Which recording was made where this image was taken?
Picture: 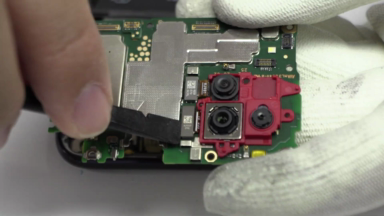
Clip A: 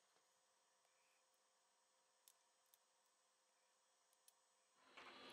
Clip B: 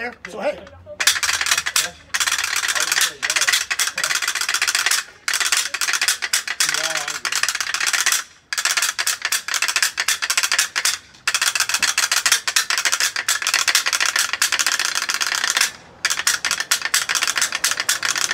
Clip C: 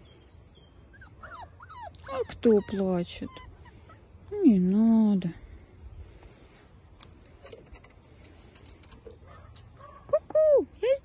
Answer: A